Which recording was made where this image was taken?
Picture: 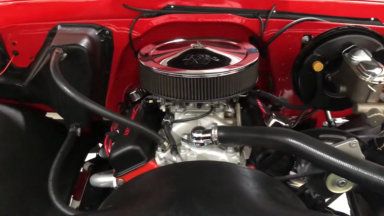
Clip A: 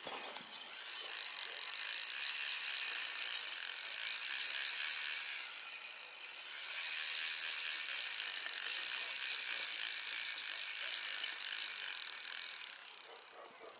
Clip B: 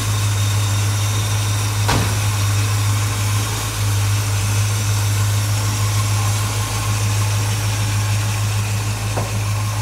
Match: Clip B